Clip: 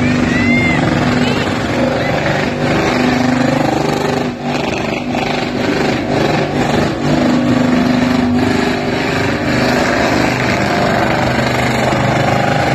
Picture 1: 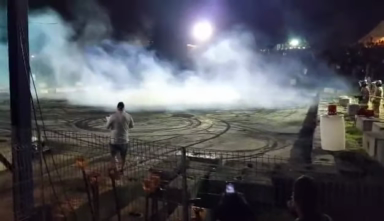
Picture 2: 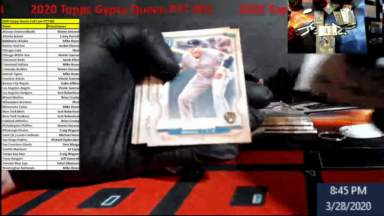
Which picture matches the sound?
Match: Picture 1